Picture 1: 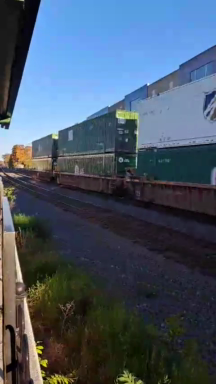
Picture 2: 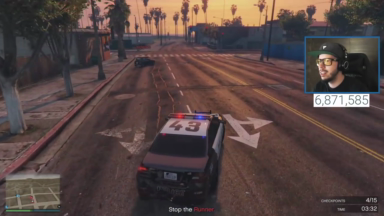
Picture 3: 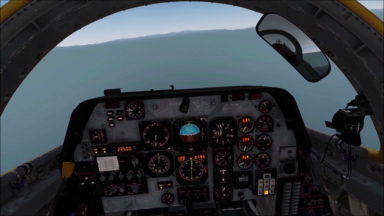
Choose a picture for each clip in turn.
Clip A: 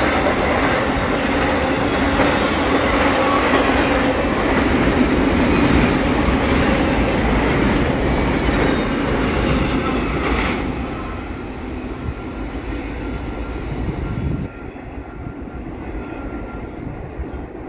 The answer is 1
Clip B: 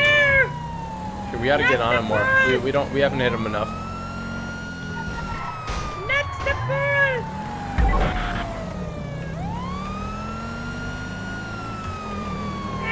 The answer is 2